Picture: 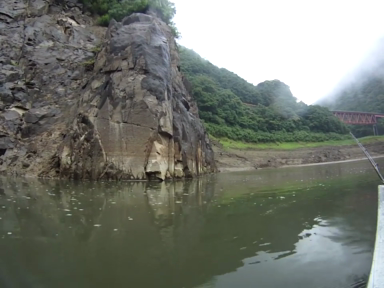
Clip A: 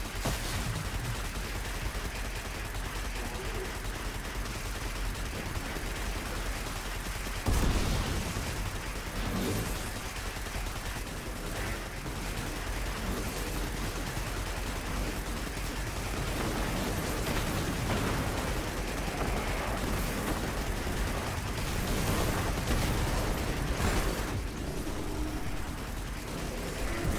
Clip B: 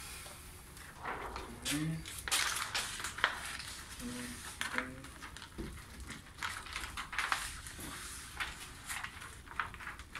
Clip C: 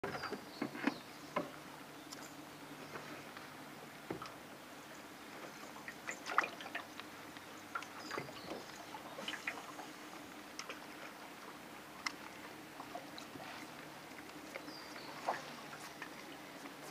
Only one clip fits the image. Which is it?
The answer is C